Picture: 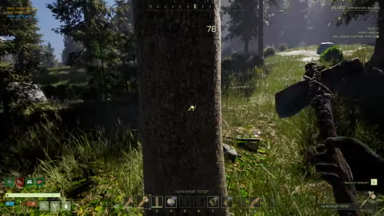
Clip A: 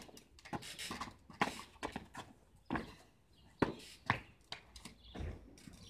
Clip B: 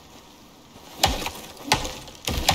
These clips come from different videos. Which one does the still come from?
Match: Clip B